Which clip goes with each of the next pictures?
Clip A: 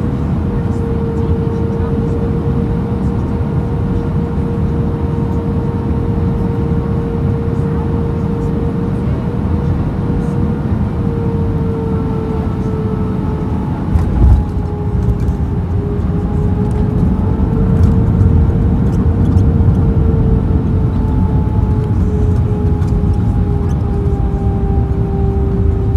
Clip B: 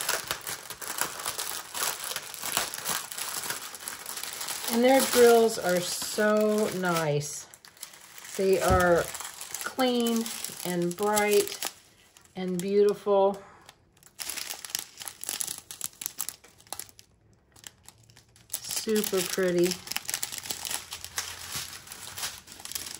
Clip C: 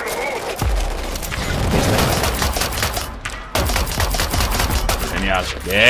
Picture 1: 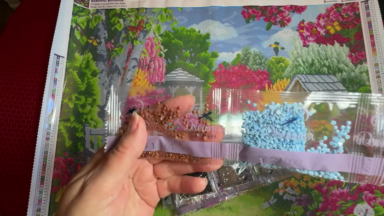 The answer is B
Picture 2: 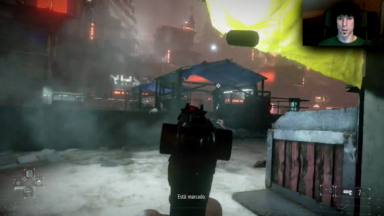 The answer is C